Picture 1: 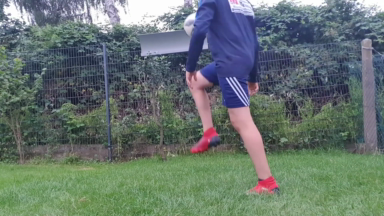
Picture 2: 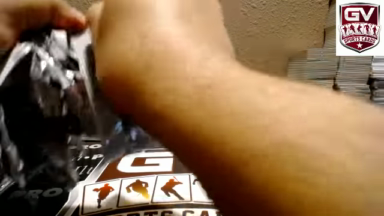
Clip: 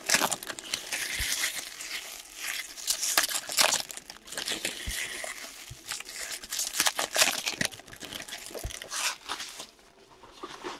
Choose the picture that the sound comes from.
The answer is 2